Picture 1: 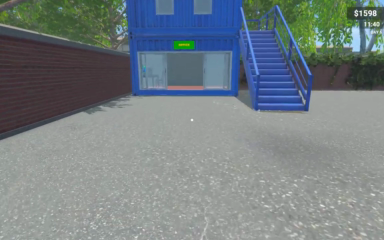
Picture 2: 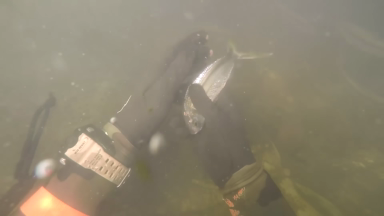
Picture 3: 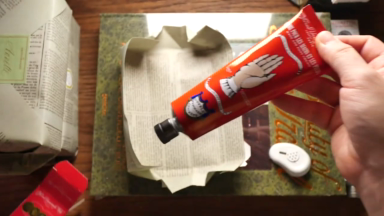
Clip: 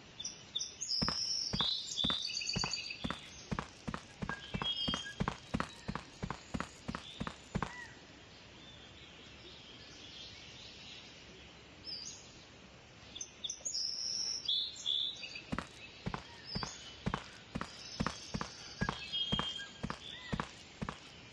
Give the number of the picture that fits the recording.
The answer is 1